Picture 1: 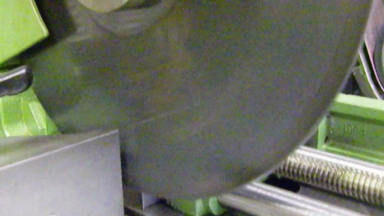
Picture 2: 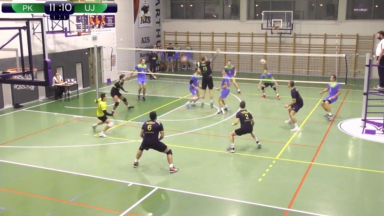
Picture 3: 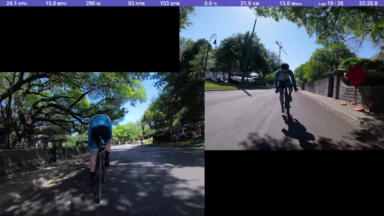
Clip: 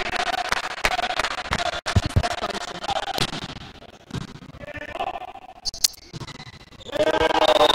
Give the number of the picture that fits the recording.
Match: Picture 2